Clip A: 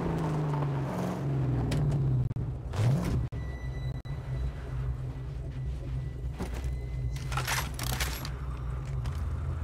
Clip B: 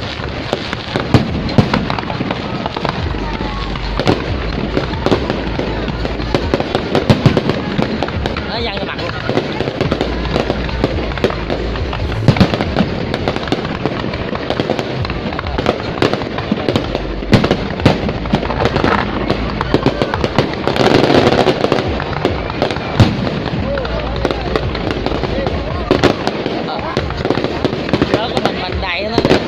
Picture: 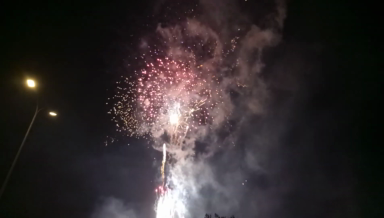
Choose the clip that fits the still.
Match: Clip B